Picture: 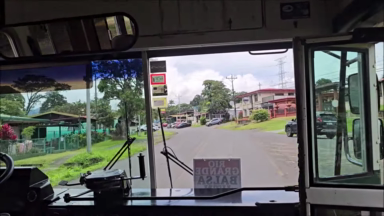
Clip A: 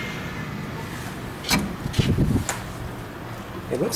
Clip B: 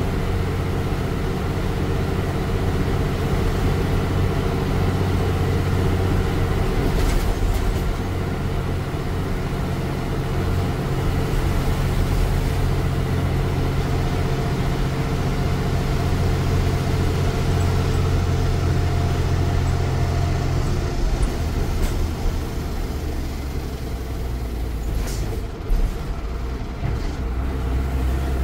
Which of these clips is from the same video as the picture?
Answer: B